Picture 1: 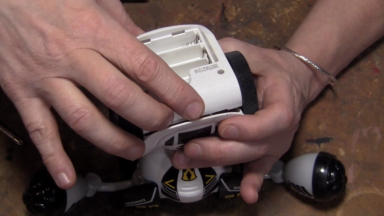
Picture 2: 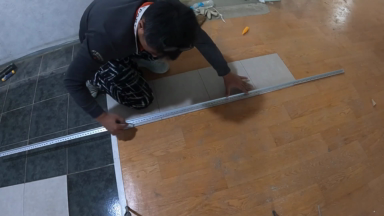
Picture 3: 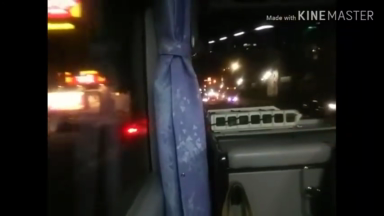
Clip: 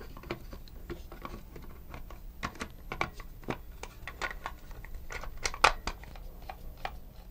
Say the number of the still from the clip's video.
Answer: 1